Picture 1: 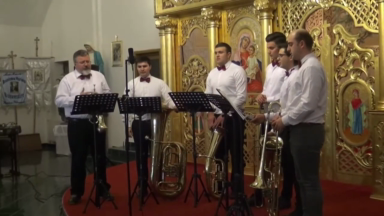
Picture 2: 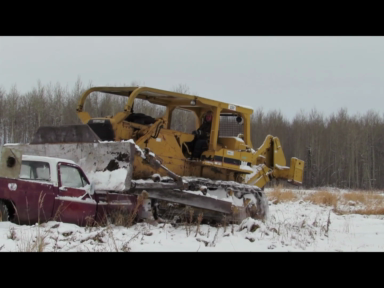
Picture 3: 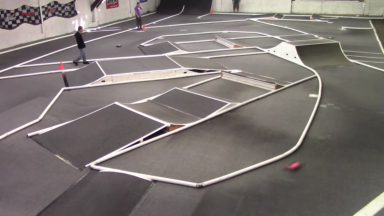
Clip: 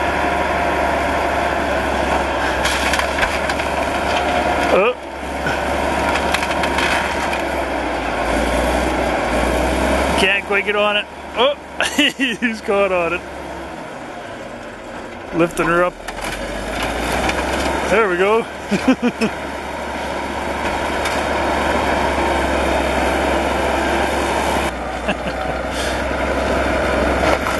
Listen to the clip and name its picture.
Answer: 2